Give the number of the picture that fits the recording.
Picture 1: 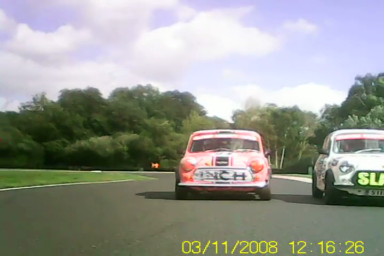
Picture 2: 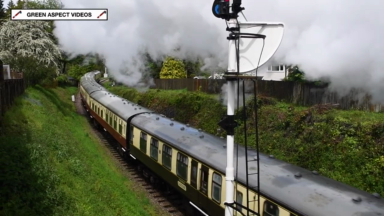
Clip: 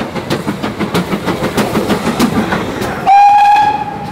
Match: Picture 2